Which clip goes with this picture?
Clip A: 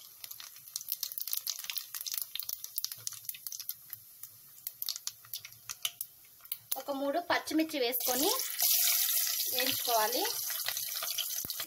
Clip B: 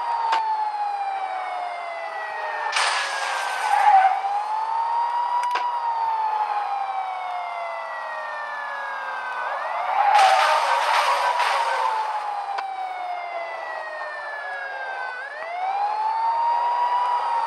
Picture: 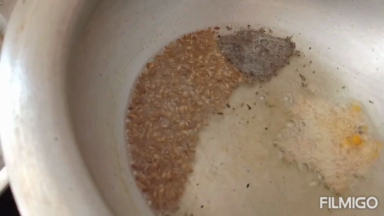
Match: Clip A